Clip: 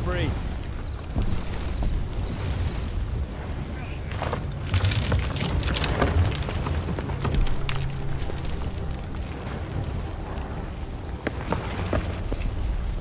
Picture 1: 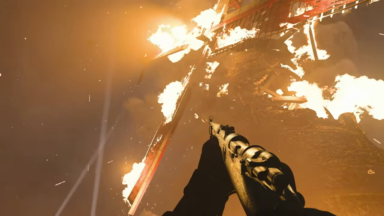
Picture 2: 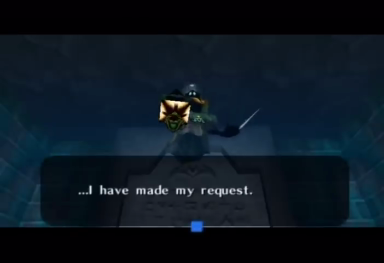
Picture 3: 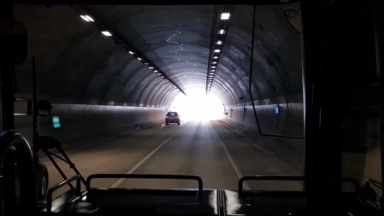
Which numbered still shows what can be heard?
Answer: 1